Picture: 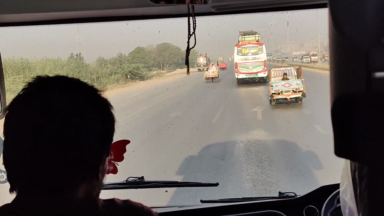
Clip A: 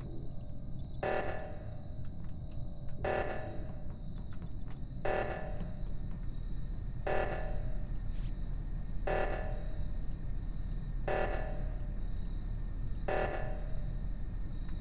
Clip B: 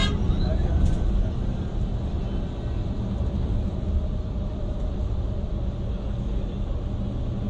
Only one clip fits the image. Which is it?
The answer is B